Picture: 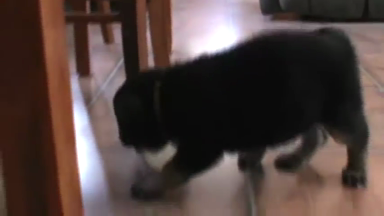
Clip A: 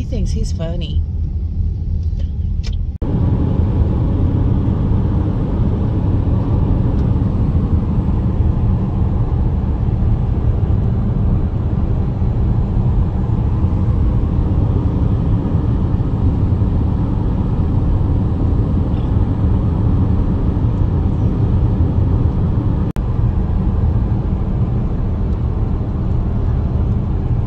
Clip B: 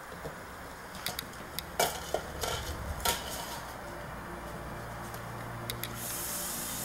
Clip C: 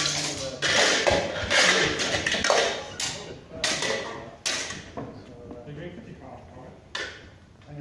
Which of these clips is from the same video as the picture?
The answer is B